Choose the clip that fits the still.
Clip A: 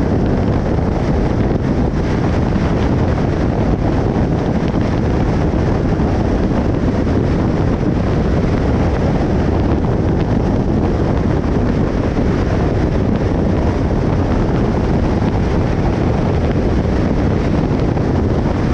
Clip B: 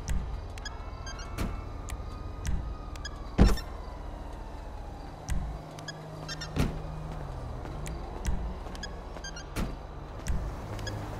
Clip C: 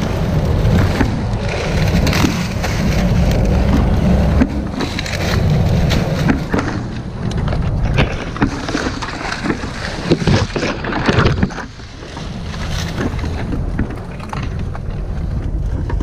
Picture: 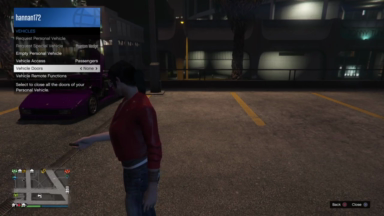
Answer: B